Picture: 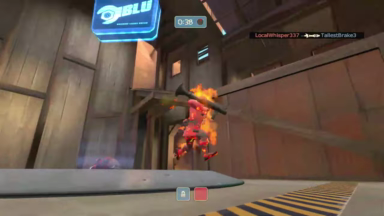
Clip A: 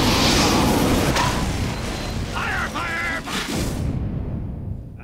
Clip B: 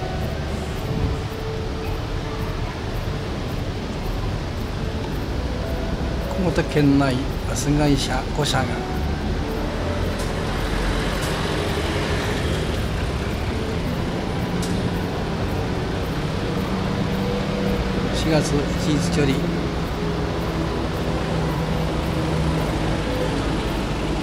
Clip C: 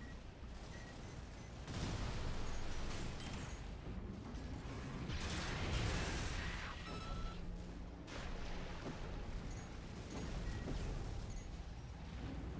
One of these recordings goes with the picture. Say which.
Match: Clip A